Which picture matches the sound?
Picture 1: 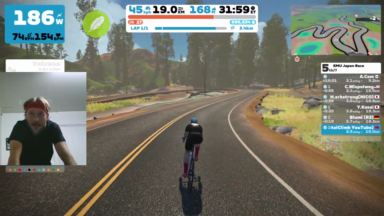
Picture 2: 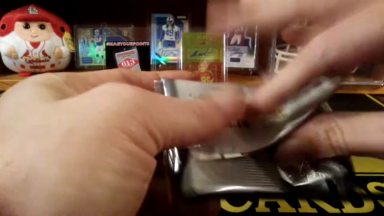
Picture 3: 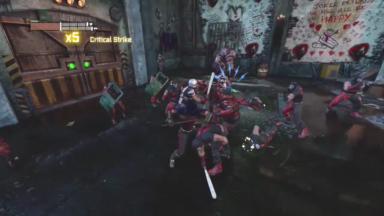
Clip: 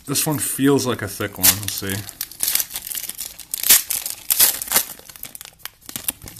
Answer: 2